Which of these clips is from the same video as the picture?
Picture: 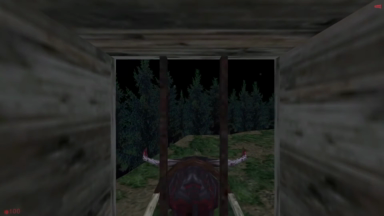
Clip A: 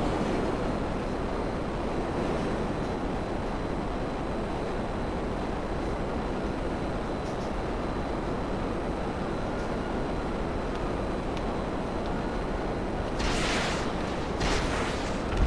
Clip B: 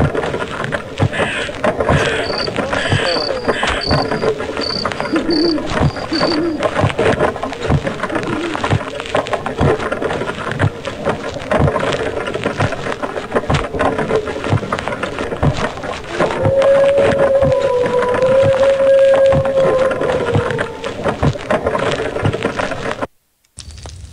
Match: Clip B